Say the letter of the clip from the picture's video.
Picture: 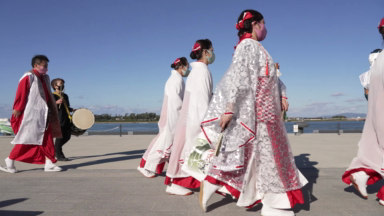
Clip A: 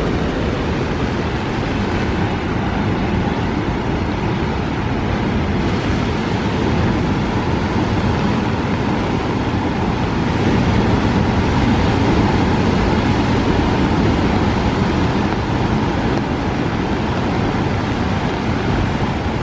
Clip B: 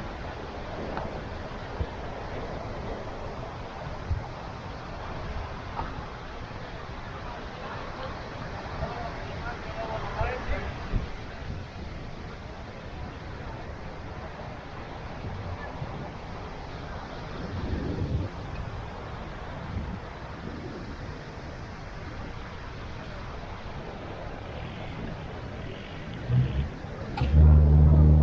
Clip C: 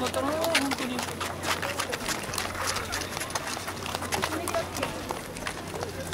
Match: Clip C